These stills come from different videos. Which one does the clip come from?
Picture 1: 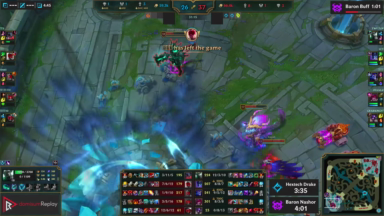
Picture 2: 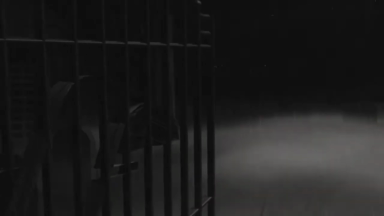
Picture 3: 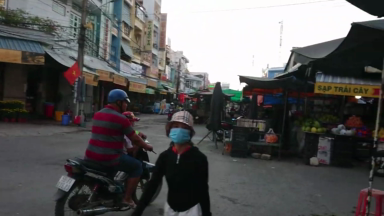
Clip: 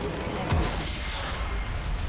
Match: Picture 1